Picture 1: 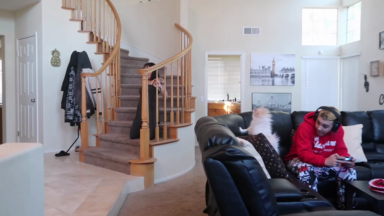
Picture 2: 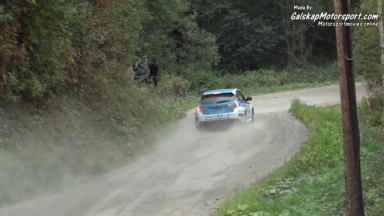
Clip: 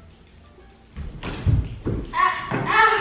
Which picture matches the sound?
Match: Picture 1